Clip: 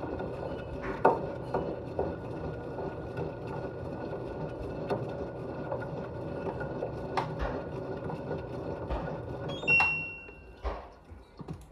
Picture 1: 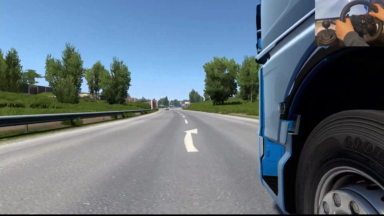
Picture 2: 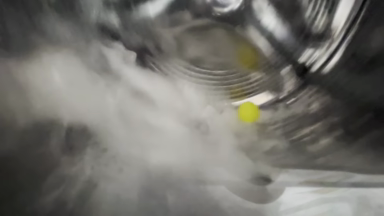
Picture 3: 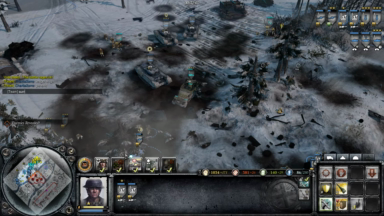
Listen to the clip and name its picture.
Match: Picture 2